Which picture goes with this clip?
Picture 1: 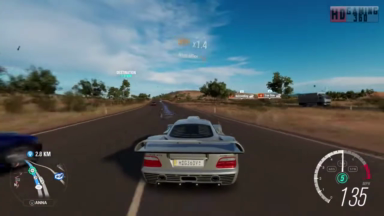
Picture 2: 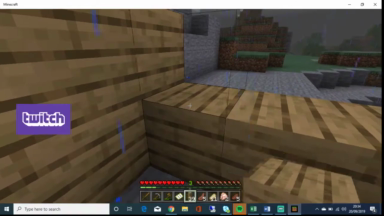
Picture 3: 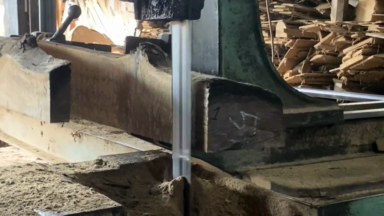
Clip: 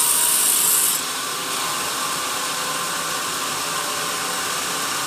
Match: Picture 3